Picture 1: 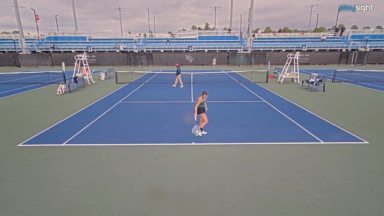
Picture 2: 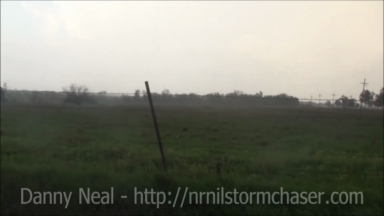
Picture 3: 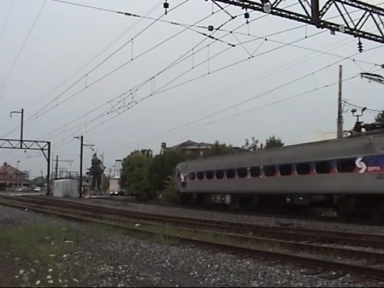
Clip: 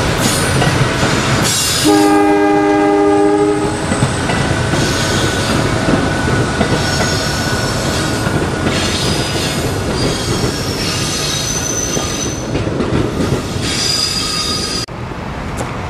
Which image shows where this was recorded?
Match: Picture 3